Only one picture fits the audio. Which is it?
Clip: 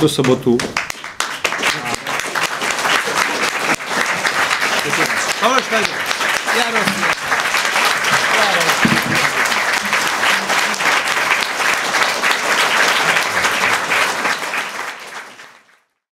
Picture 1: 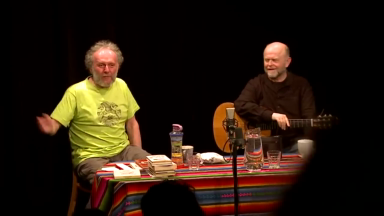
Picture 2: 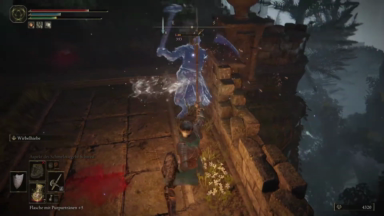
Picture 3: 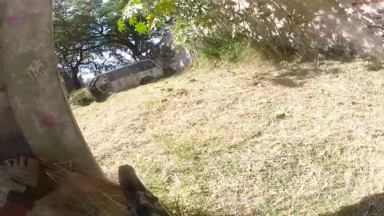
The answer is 1